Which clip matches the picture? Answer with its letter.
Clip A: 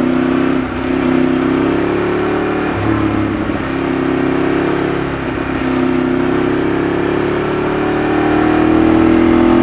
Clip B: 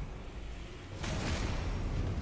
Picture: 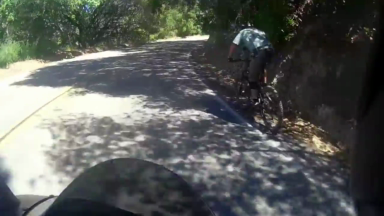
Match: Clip A